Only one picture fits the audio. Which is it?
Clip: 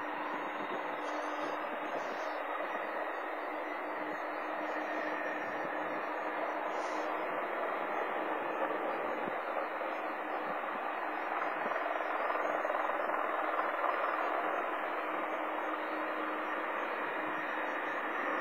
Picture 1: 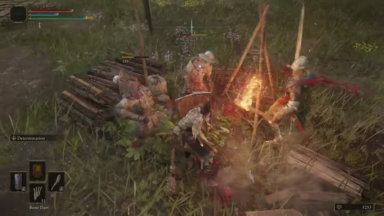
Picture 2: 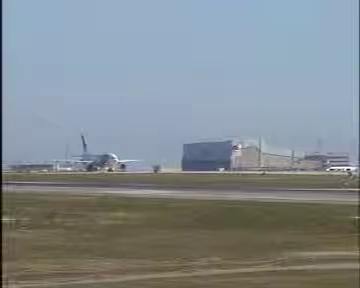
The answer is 2